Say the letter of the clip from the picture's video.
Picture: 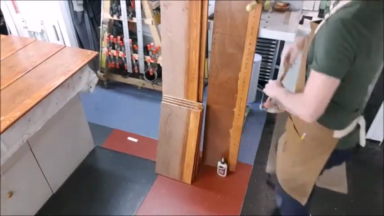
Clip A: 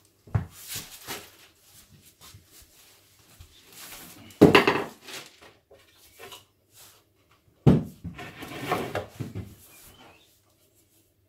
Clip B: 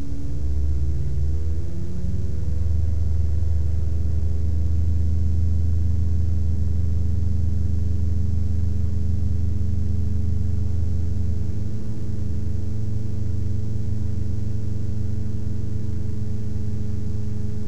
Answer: A